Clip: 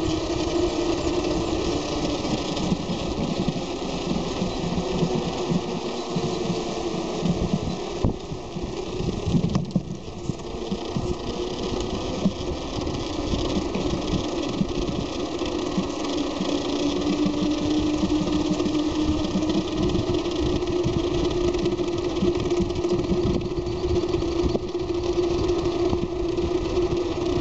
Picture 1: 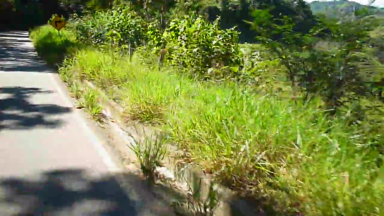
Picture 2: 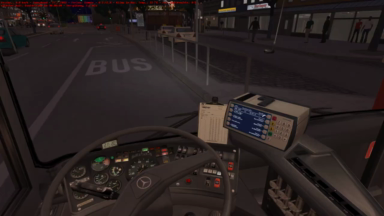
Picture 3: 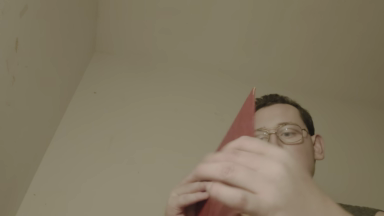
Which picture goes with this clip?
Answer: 1